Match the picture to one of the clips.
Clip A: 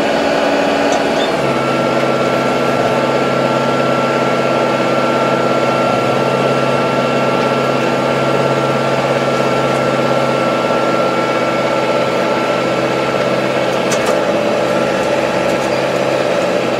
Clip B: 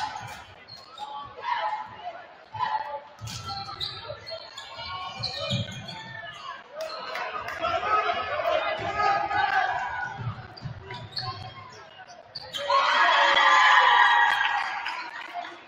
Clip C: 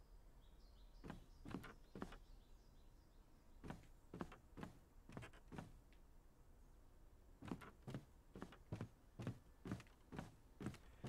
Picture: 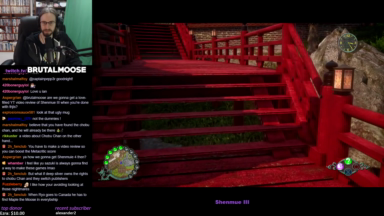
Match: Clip C